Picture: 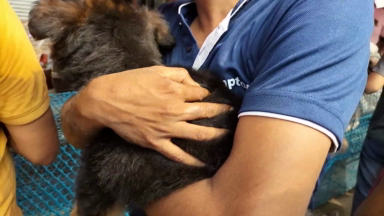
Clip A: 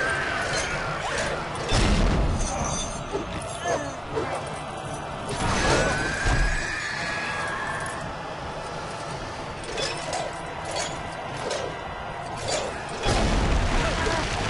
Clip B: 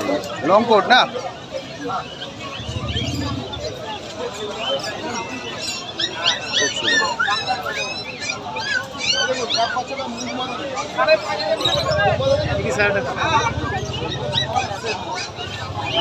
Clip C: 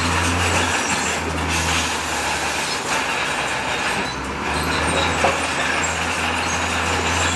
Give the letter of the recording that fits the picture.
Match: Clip B